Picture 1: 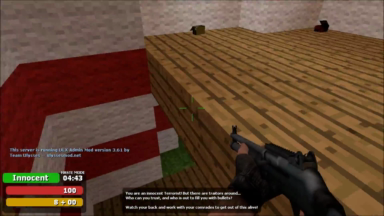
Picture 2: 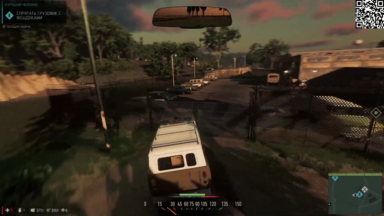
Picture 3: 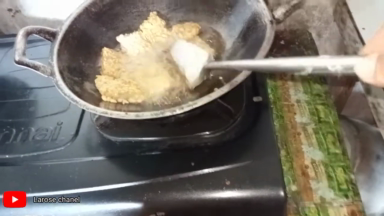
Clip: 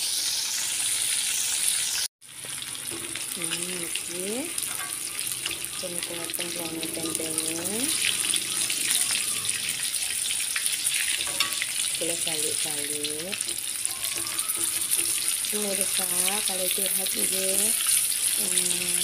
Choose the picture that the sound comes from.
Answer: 3